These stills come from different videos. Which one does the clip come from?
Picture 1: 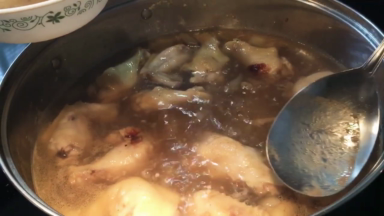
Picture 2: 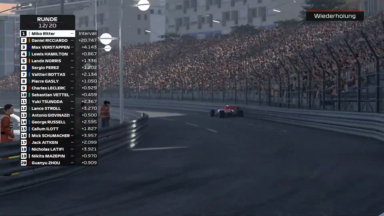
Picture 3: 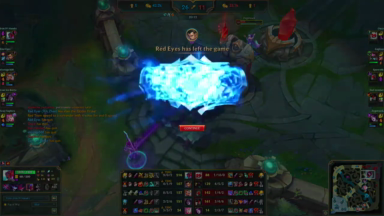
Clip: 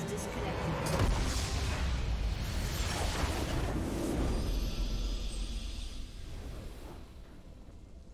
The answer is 3